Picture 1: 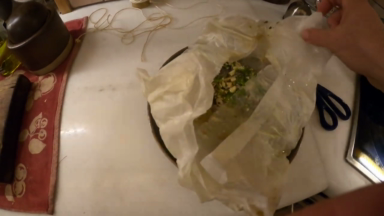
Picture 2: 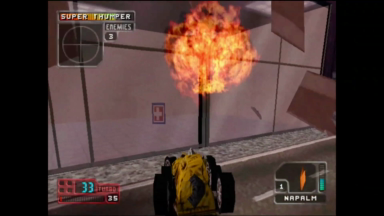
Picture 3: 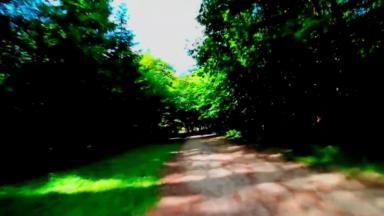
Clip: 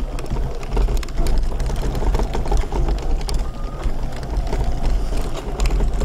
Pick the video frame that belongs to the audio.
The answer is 3